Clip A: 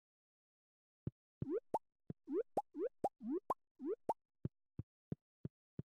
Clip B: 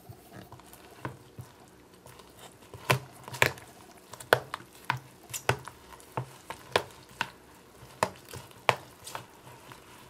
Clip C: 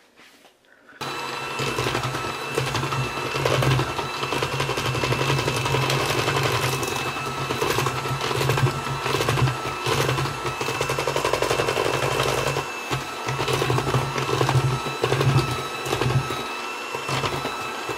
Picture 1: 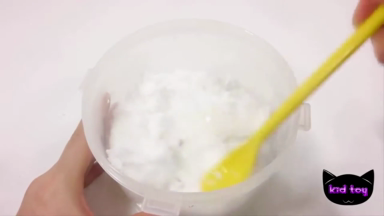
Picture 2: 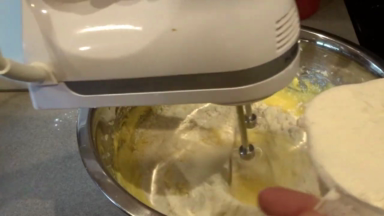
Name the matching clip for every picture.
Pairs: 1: B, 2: C